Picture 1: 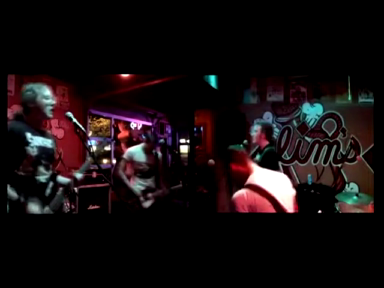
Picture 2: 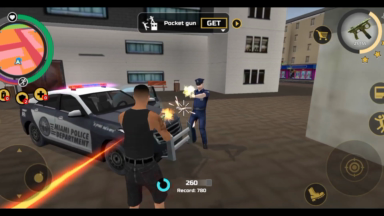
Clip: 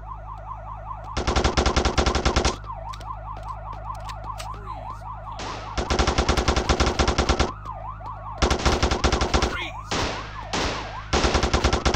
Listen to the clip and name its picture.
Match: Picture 2